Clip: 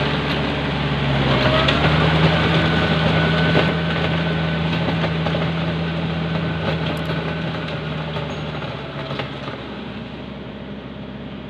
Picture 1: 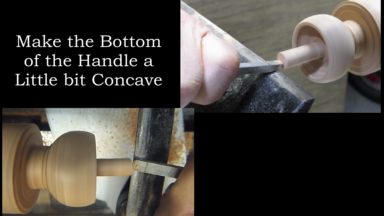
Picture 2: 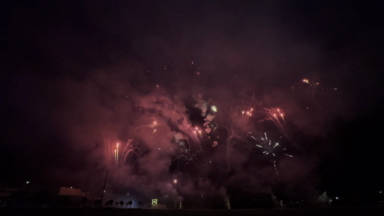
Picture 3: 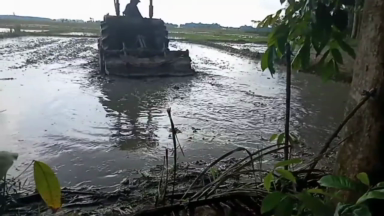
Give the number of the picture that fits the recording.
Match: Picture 3